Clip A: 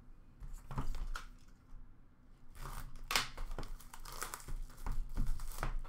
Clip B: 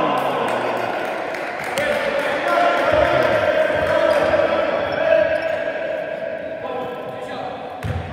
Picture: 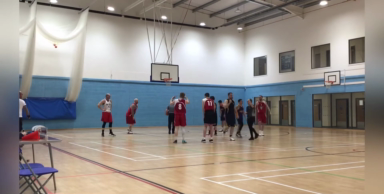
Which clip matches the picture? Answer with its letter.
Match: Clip B